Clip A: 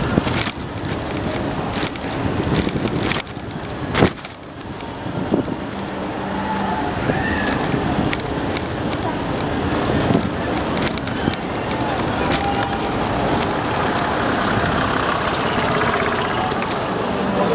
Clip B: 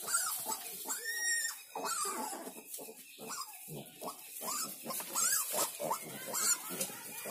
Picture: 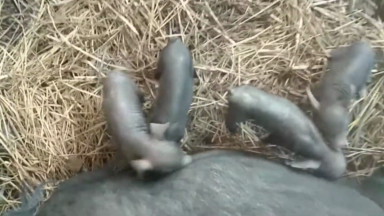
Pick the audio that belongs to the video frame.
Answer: B